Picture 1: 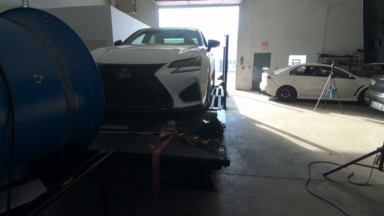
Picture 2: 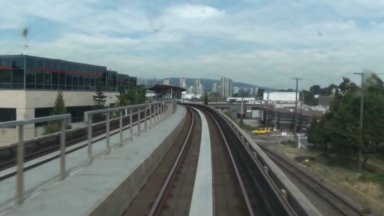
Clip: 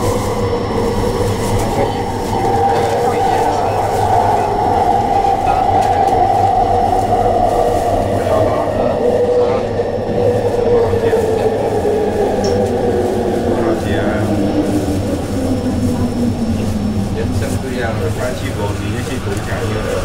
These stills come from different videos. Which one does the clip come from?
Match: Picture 2